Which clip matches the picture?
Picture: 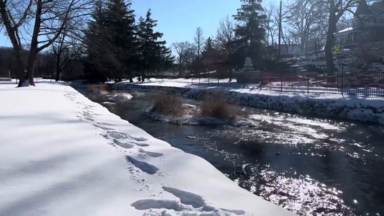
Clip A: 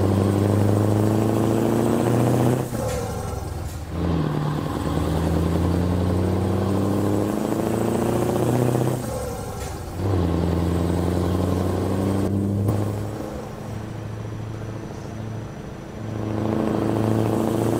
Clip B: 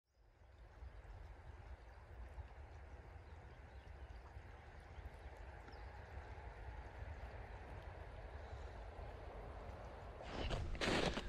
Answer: B